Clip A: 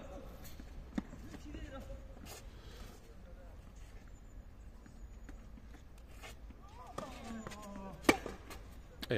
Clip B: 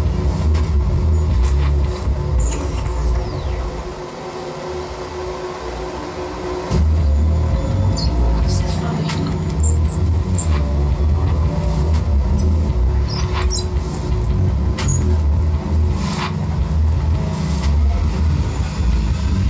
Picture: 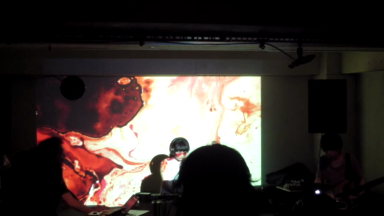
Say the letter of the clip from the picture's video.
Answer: B